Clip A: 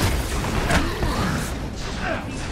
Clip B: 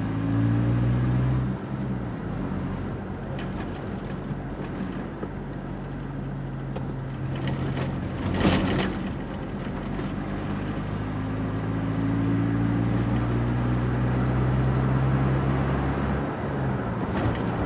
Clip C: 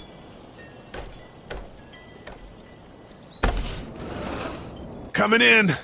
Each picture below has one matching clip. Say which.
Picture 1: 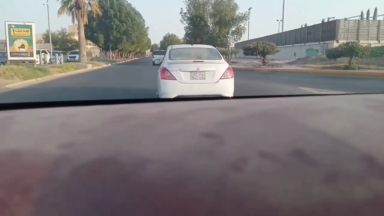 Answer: B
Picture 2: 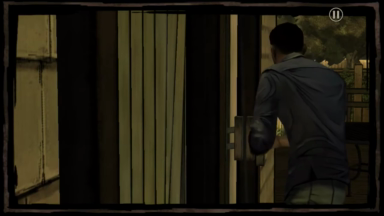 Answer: C